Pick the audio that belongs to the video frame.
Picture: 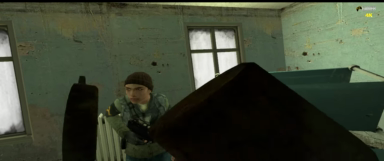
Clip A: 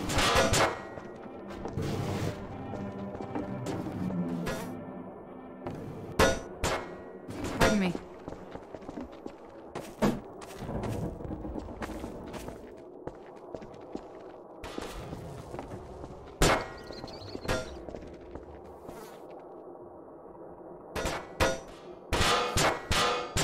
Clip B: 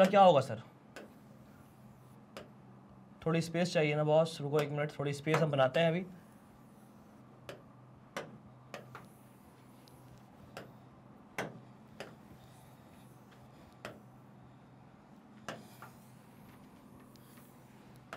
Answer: A